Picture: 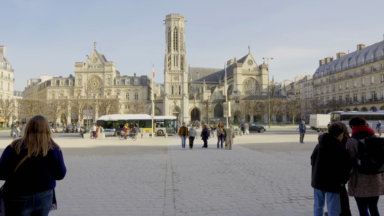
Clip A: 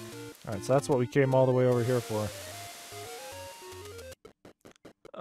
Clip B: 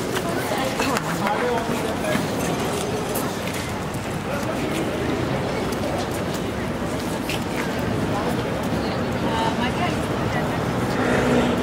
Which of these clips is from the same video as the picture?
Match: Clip B